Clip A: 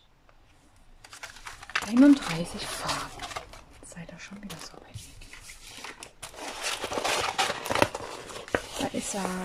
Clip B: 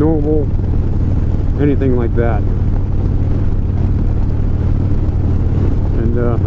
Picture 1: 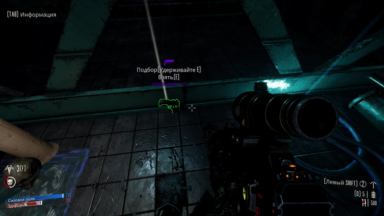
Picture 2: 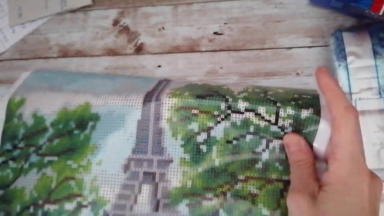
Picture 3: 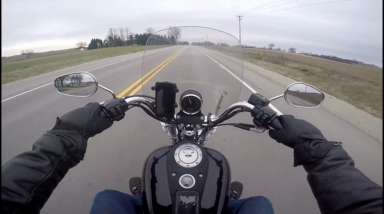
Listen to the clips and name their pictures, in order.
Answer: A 2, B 3